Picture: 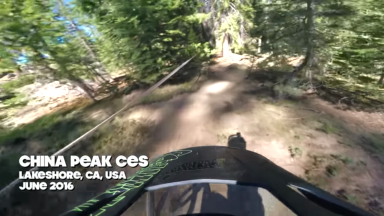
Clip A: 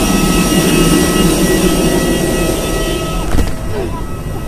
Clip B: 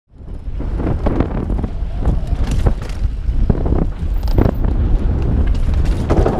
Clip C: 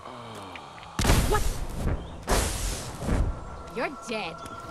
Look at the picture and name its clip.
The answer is B